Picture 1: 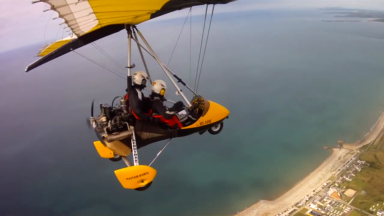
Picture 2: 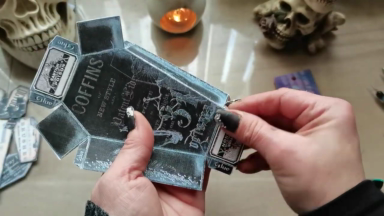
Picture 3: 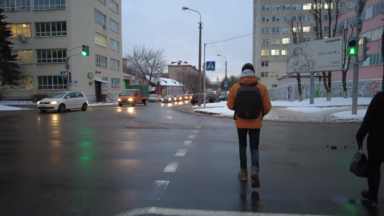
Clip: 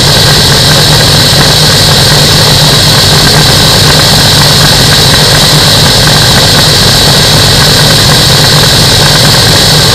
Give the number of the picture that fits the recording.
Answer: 1